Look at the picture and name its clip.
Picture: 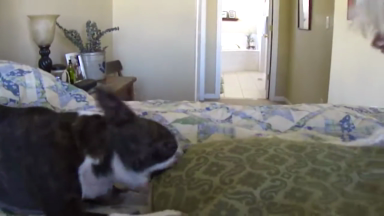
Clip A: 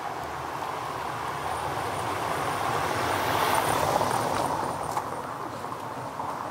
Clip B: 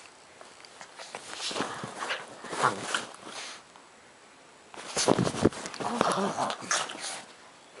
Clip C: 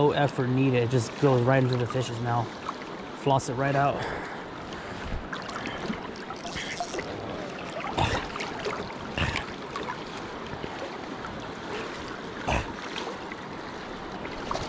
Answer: B